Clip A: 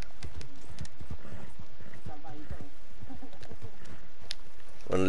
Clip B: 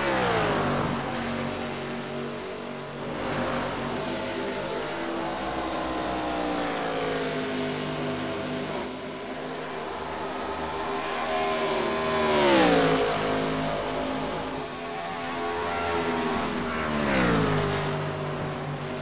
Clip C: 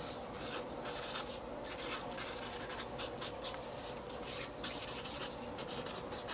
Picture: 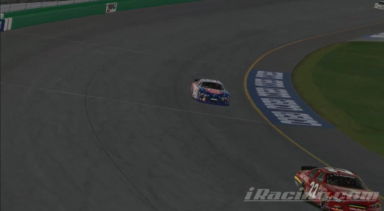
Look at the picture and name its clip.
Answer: B